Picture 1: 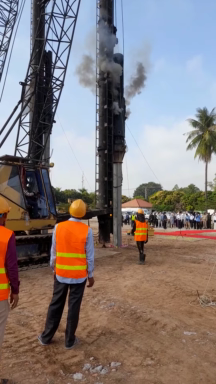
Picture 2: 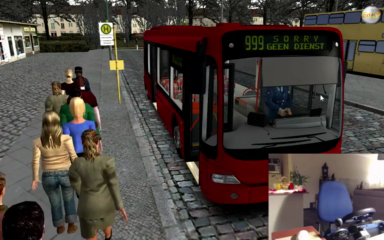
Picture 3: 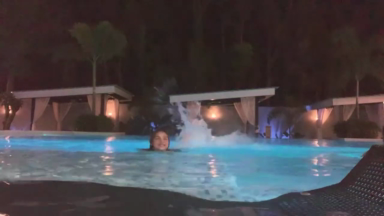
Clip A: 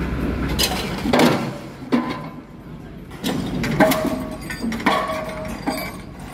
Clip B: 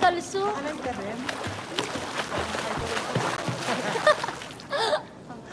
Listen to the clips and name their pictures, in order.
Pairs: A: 1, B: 3